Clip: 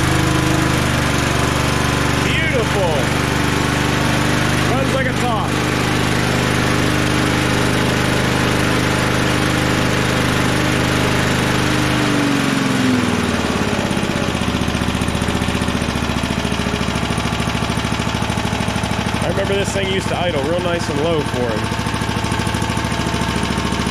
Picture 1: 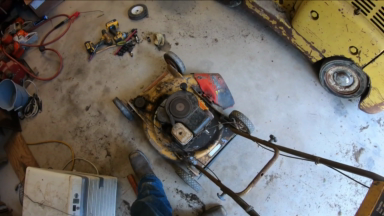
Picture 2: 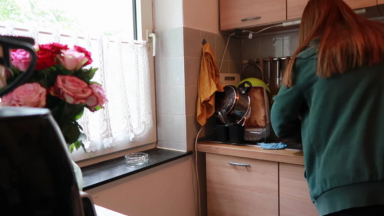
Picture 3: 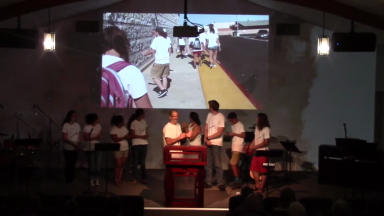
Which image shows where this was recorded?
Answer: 1